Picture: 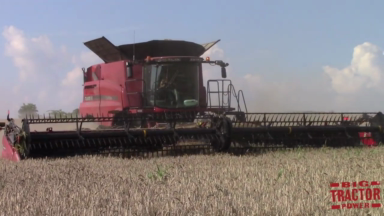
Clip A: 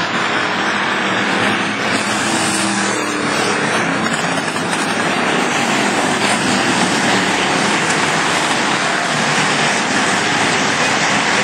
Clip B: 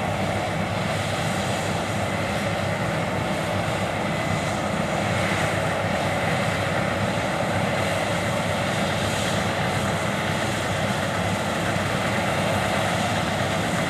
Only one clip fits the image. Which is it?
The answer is B